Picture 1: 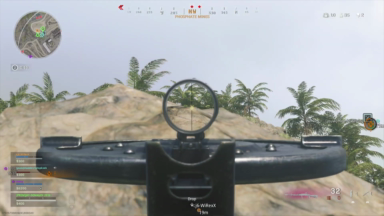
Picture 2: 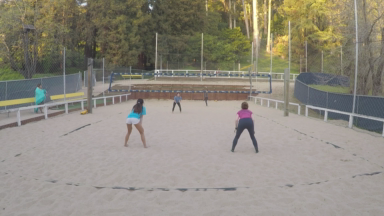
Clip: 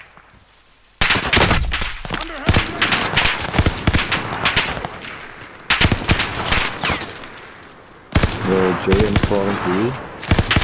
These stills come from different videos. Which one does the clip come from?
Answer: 1